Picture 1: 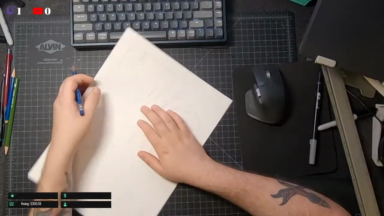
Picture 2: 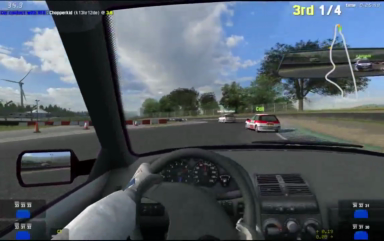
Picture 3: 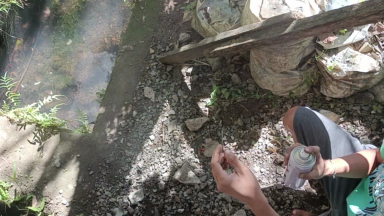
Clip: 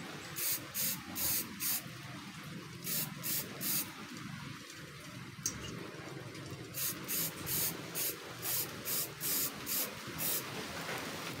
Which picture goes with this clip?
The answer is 3